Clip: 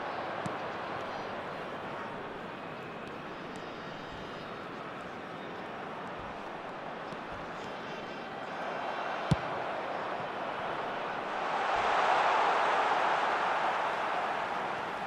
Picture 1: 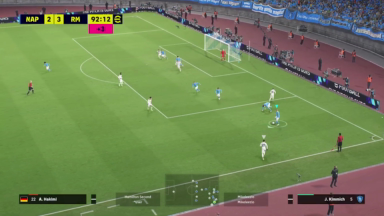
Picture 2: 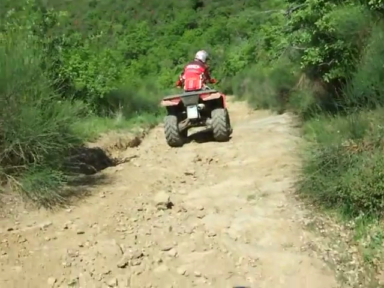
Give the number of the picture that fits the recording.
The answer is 1